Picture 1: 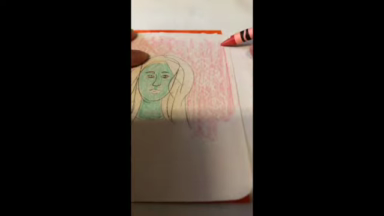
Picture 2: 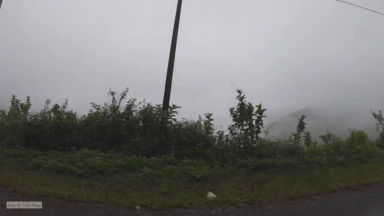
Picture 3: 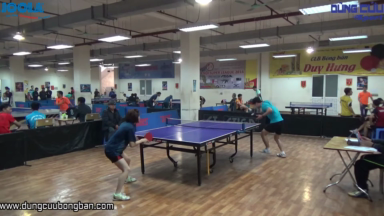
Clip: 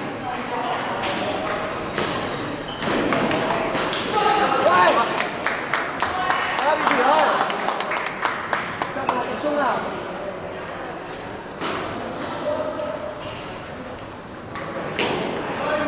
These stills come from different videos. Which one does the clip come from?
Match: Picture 3